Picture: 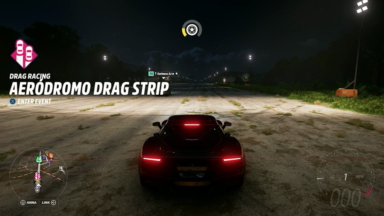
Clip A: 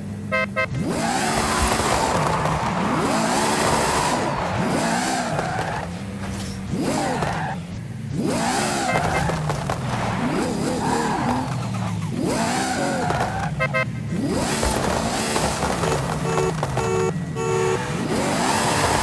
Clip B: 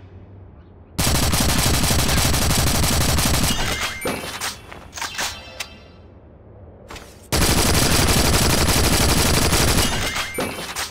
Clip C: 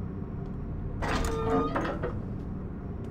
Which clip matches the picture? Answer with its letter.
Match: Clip A